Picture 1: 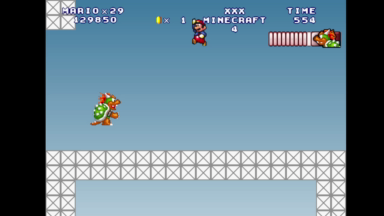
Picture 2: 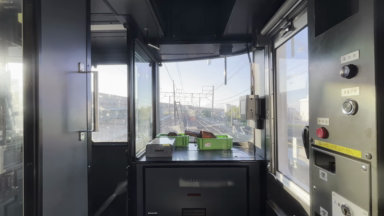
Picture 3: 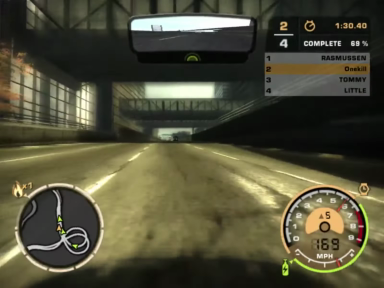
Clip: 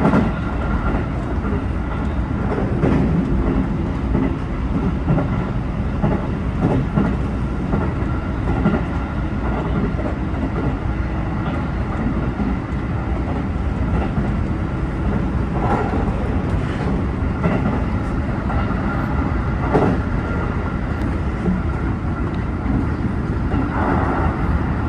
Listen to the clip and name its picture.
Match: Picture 2